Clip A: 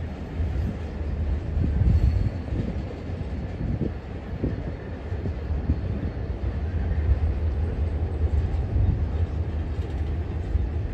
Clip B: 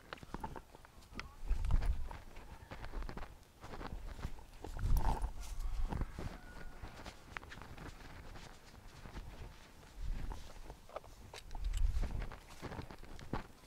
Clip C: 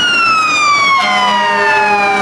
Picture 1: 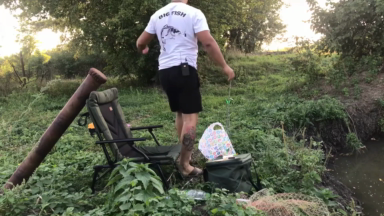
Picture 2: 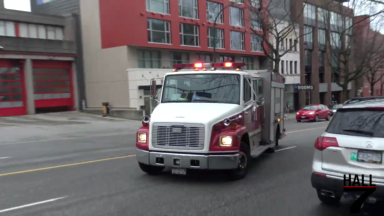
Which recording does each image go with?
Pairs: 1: B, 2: C